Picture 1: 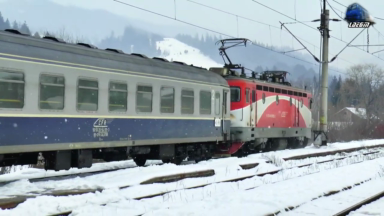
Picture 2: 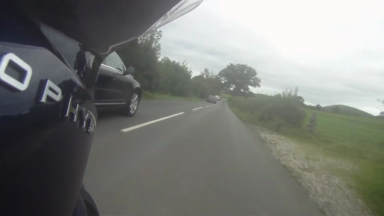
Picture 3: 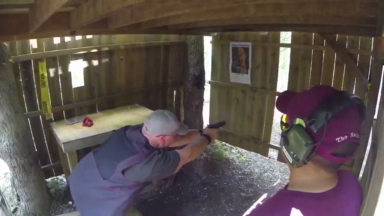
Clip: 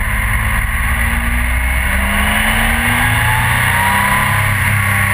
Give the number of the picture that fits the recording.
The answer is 2